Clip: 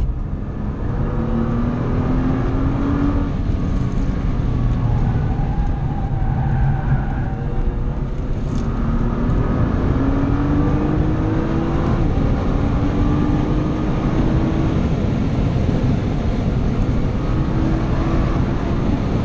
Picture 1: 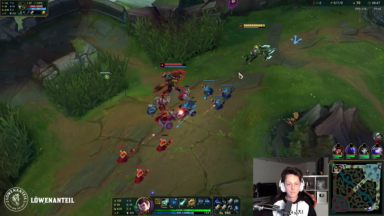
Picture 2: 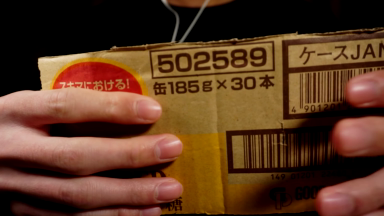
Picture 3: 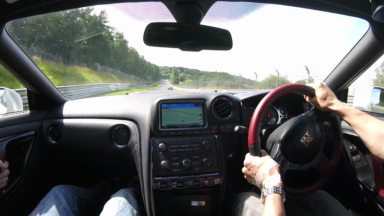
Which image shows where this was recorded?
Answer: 3